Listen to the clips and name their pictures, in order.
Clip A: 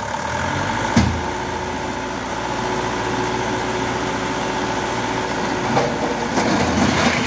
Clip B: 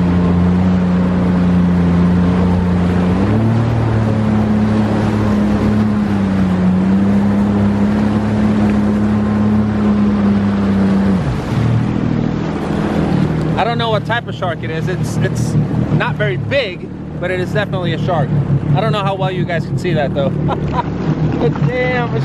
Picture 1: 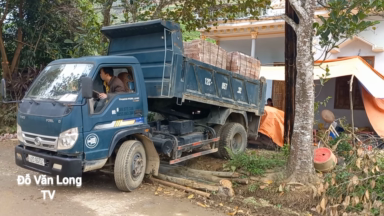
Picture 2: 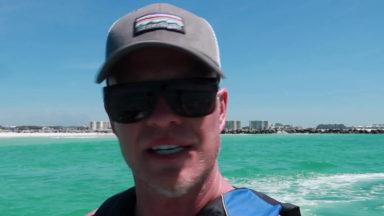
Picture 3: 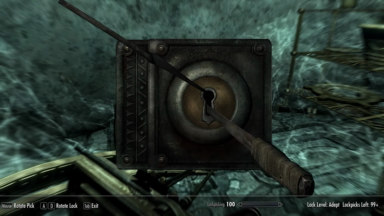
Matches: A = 1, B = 2